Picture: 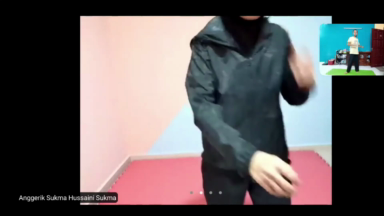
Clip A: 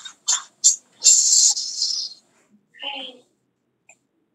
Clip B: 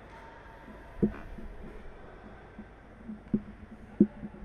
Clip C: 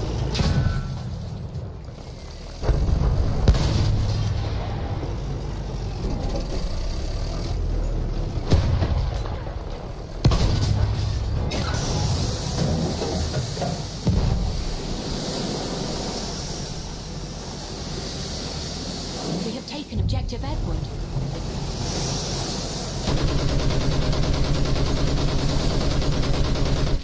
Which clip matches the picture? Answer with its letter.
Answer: A